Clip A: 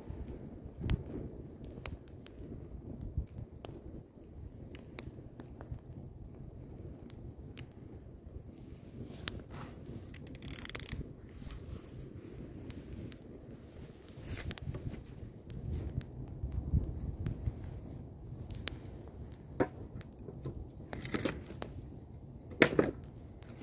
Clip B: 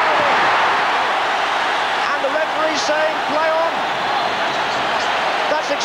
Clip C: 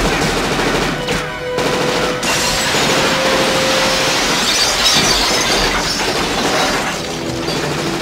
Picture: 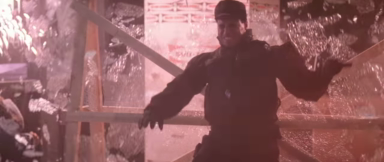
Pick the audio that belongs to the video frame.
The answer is C